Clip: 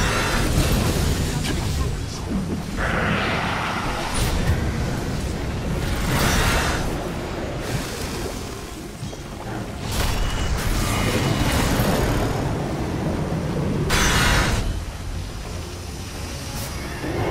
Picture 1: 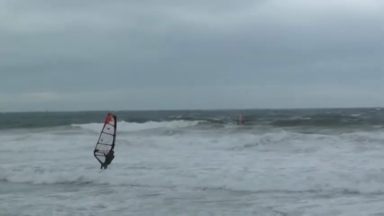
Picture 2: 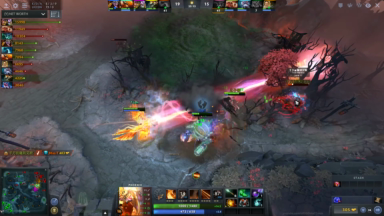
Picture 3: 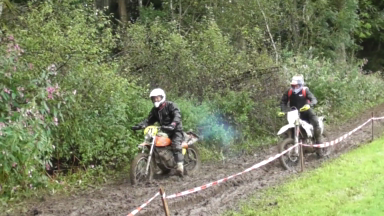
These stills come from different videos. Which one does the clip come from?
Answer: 2